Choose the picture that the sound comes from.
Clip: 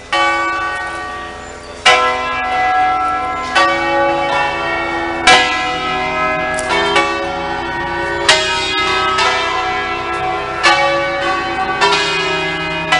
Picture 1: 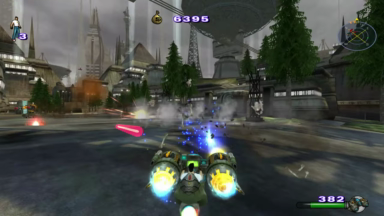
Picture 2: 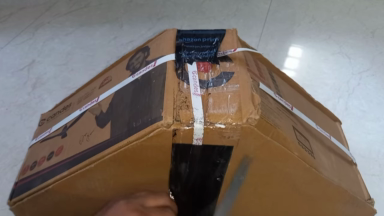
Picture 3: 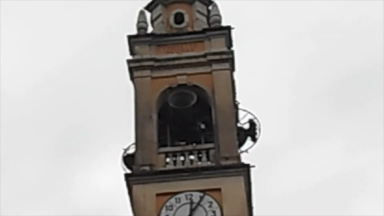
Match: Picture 3